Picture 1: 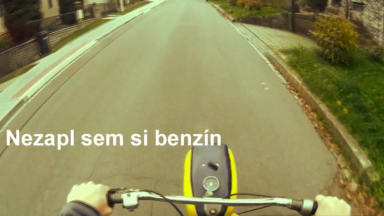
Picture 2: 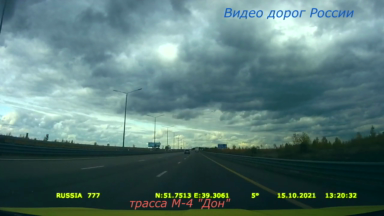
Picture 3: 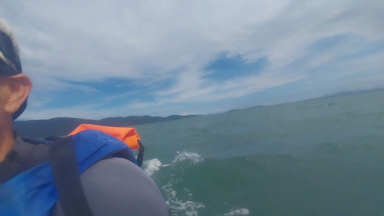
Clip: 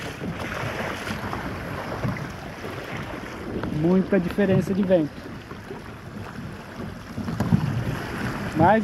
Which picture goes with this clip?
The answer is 3